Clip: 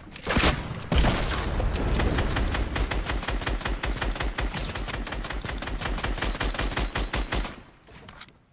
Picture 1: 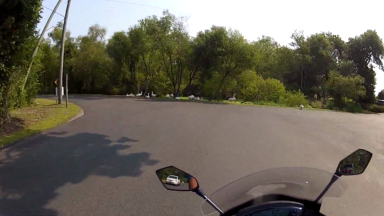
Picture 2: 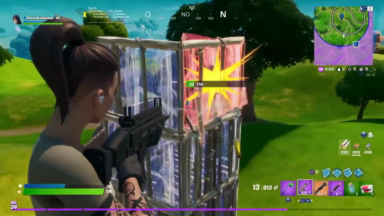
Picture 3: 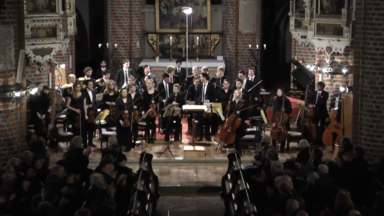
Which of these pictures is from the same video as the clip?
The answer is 2